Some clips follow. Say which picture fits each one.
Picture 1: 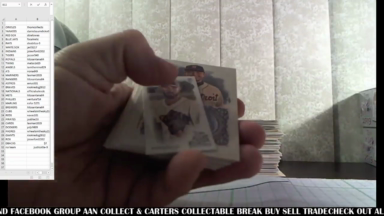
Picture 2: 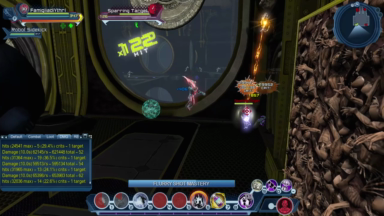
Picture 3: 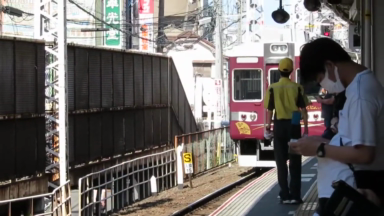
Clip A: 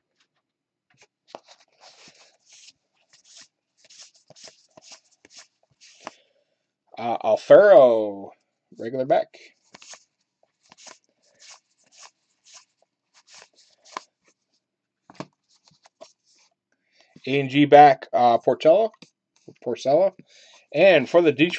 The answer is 1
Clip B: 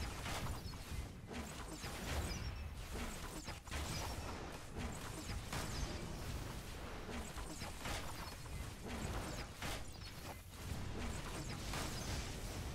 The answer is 2